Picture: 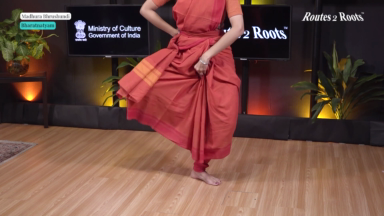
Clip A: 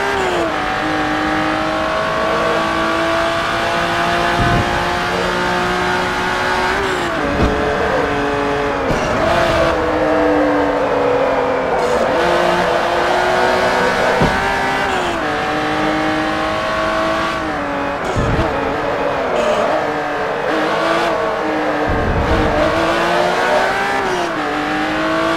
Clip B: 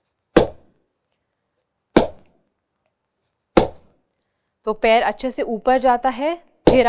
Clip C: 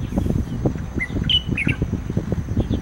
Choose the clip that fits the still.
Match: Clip B